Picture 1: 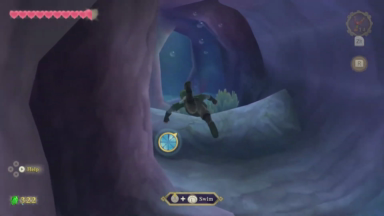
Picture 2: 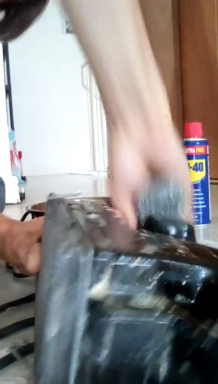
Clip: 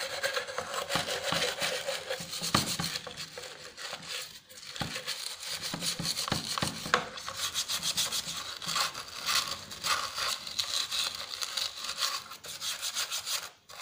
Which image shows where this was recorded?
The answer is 2